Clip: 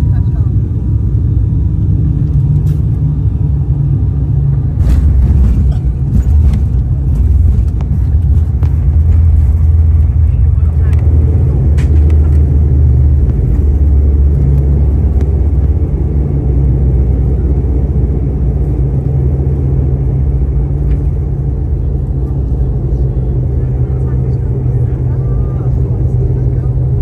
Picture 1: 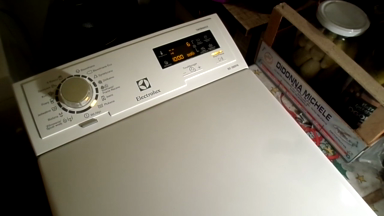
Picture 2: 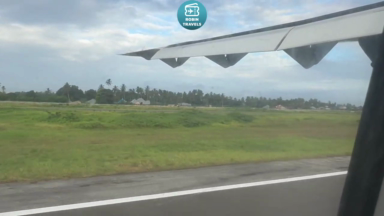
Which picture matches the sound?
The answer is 2